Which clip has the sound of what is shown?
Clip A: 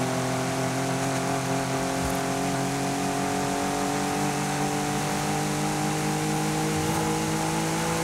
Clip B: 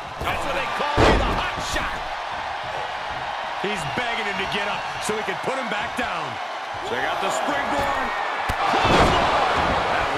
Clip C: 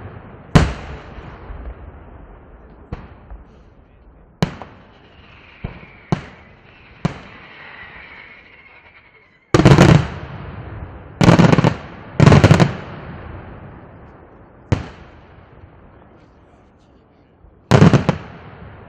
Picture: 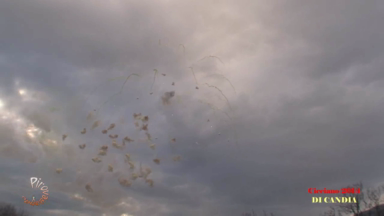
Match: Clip C